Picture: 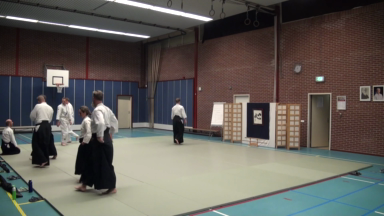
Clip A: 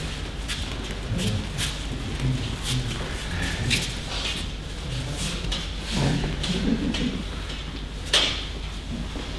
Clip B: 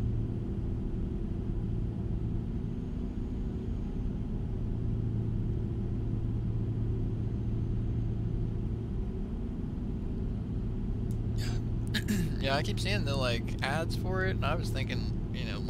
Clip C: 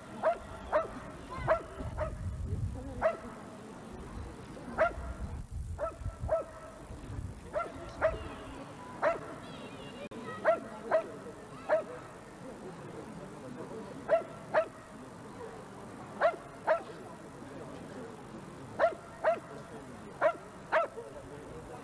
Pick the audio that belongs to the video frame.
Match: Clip A